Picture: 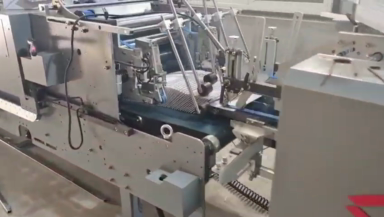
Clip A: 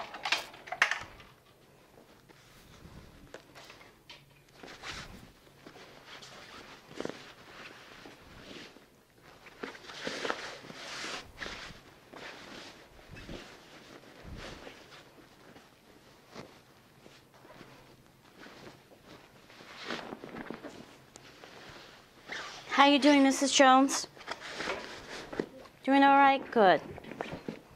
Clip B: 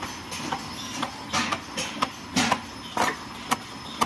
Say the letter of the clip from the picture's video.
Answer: B